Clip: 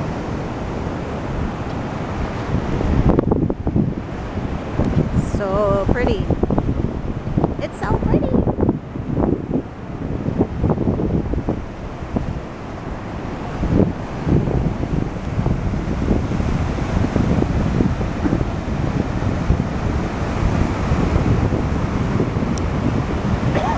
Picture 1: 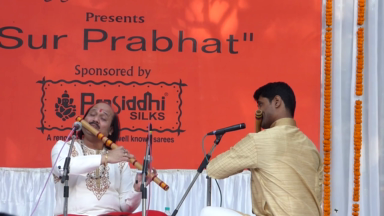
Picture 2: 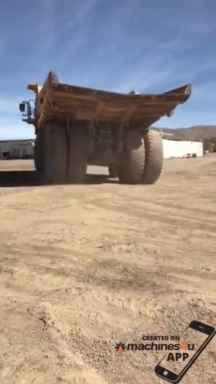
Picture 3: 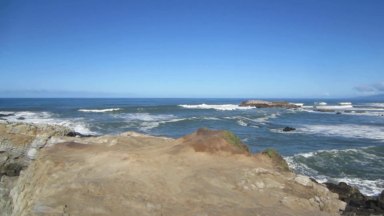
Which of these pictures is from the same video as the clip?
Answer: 3